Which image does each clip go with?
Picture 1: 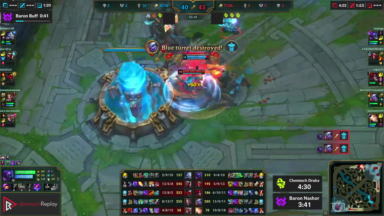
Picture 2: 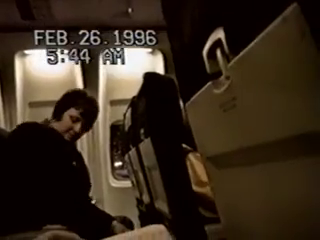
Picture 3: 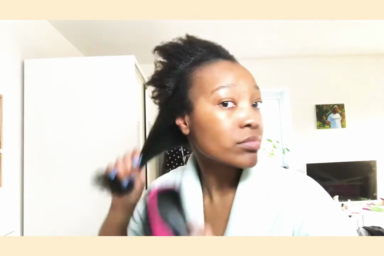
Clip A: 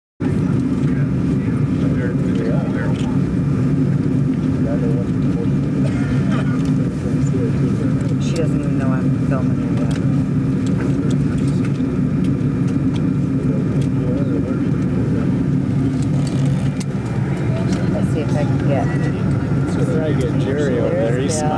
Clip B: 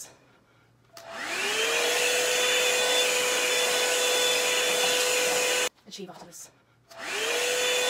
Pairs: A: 2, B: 3